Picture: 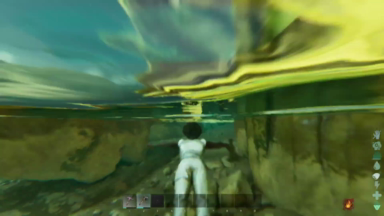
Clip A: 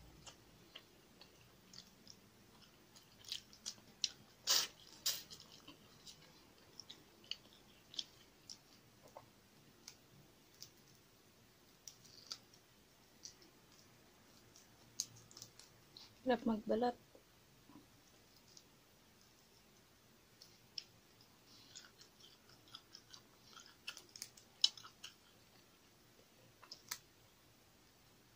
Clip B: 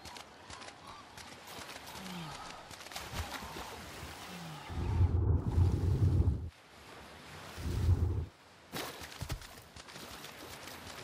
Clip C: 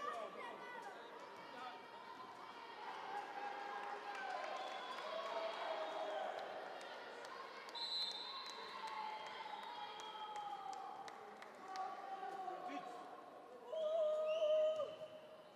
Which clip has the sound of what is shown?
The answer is B